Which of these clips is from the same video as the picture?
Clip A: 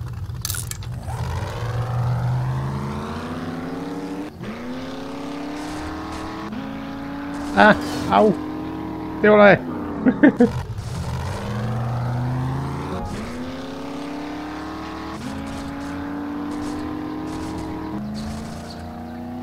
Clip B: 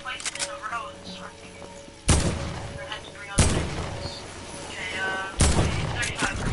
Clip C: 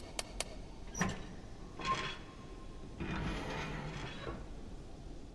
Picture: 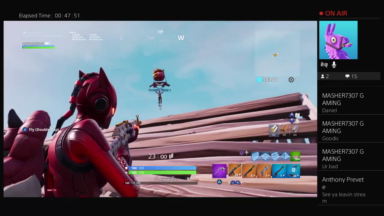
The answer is B